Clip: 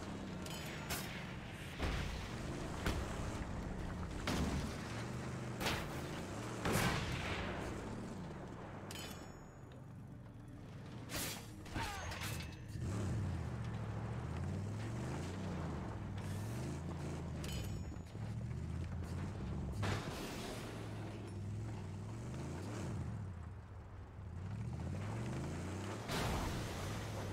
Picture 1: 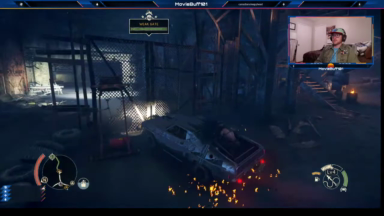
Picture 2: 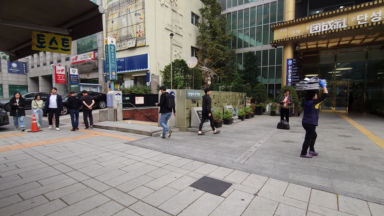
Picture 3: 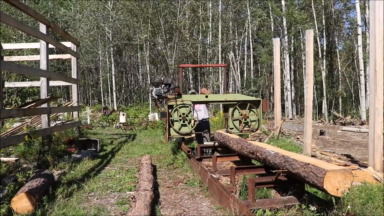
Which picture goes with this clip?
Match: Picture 1